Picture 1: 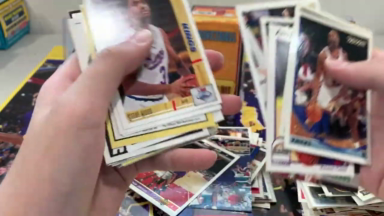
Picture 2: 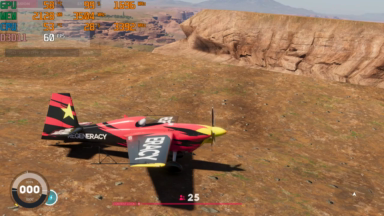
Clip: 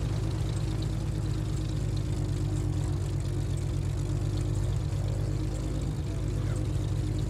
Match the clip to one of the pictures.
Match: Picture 2